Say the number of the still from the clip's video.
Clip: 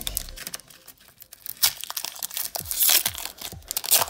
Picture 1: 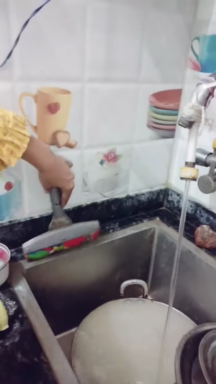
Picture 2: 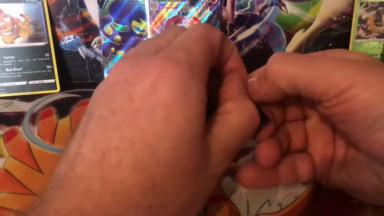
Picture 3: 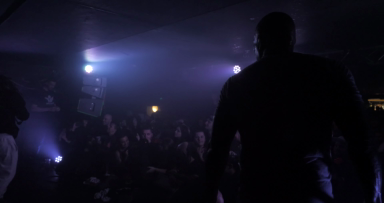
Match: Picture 2